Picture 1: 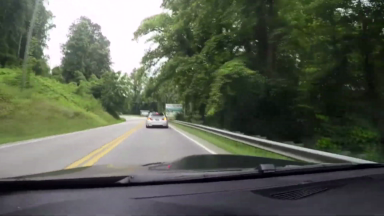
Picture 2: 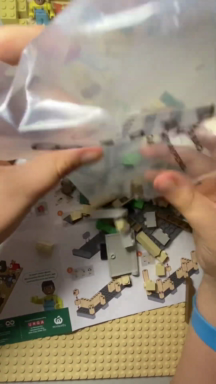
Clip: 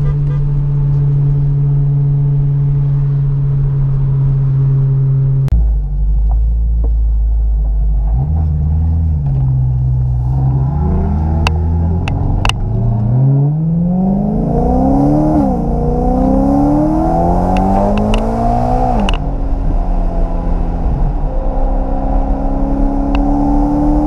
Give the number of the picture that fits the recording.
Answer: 1